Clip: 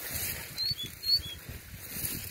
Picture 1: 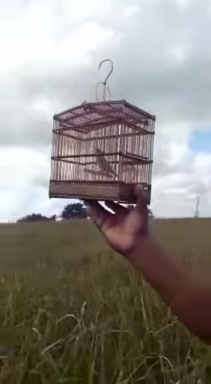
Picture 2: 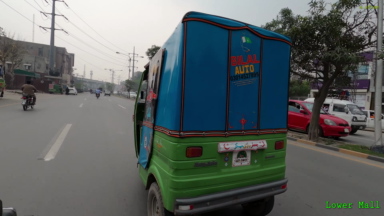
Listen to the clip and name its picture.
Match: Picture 1